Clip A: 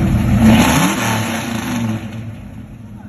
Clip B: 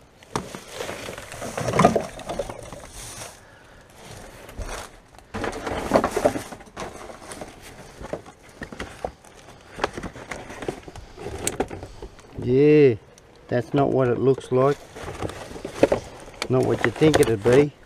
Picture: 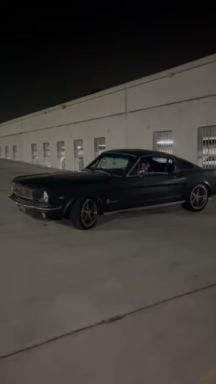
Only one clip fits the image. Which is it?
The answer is A